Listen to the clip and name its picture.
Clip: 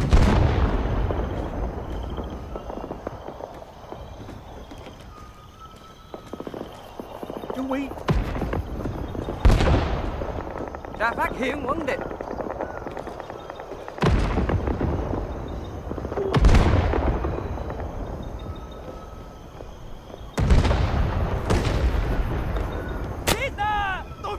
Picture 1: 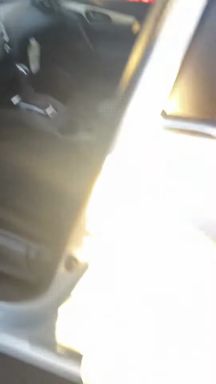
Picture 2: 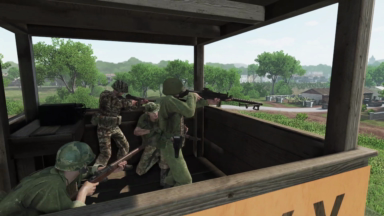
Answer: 2